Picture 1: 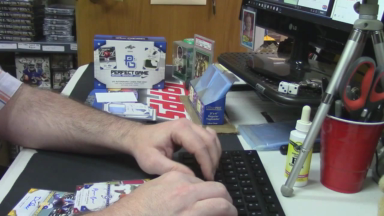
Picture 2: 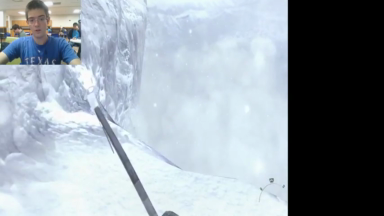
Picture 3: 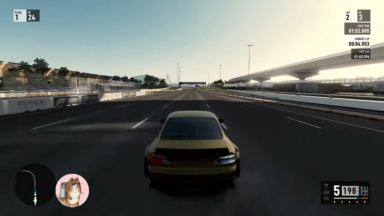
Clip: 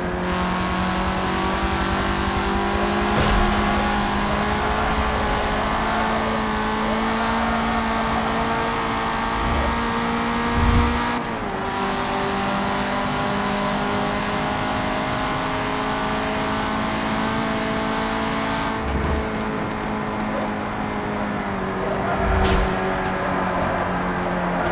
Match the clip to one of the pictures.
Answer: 3